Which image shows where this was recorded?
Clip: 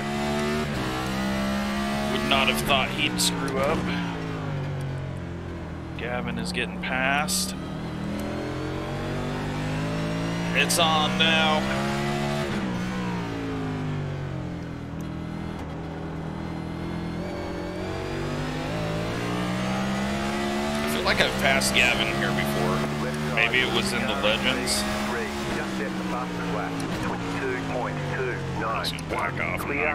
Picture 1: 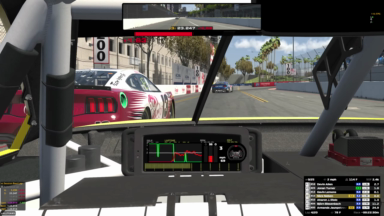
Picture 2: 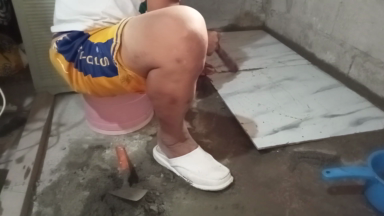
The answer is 1